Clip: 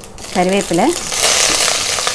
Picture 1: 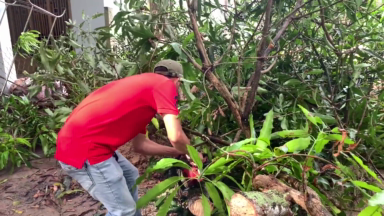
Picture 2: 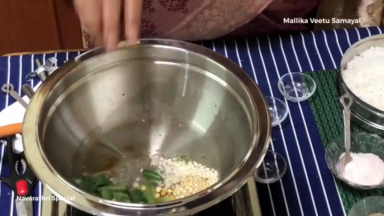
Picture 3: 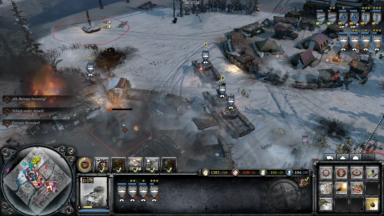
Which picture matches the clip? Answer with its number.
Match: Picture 2